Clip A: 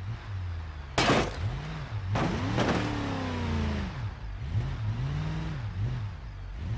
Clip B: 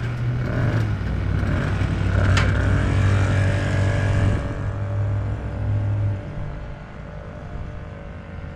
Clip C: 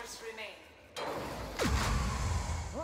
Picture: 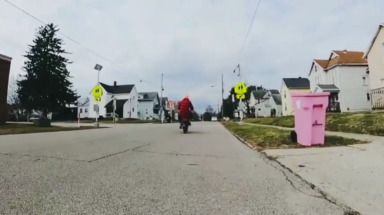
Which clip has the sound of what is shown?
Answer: B